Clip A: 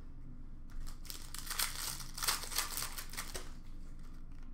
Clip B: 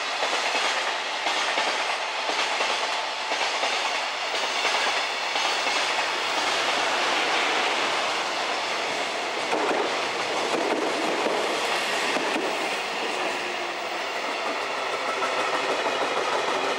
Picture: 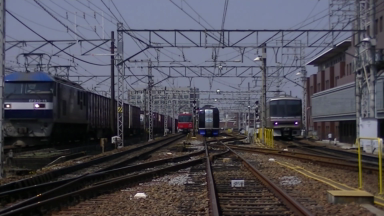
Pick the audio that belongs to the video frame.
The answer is B